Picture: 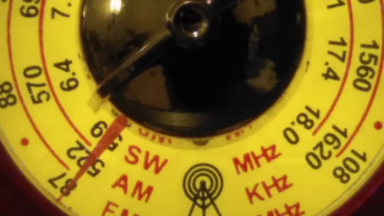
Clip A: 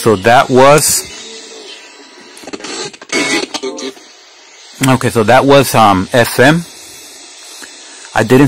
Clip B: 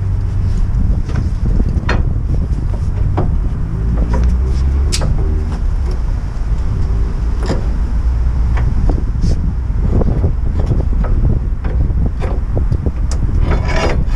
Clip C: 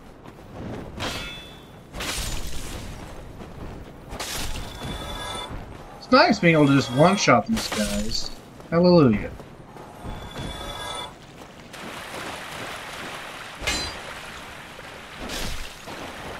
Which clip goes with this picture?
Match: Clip A